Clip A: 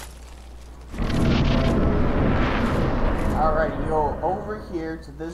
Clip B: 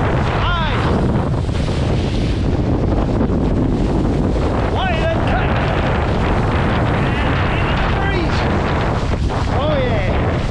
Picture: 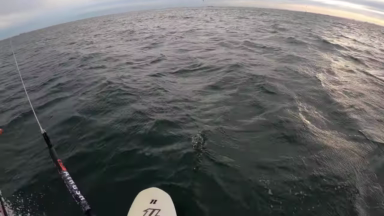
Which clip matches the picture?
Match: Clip B